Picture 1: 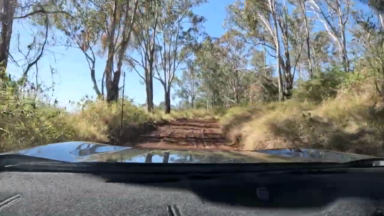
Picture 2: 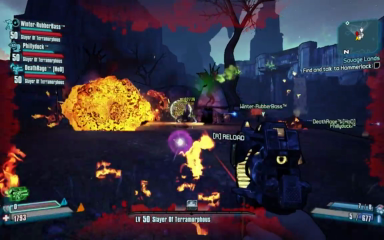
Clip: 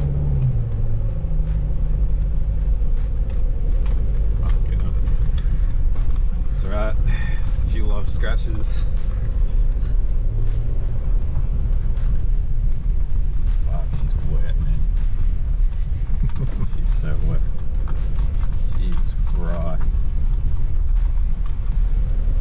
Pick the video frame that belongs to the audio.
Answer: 1